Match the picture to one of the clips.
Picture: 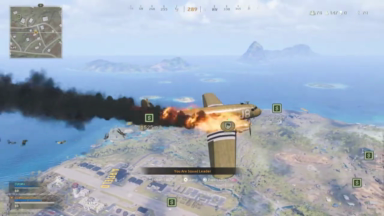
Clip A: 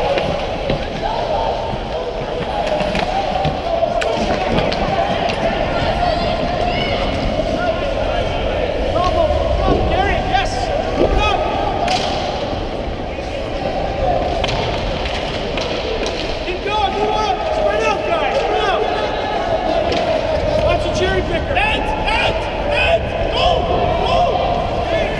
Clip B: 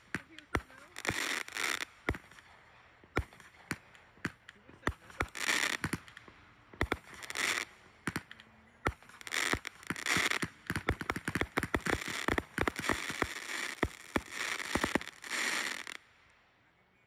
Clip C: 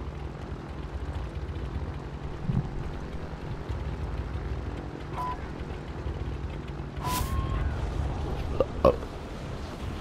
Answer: C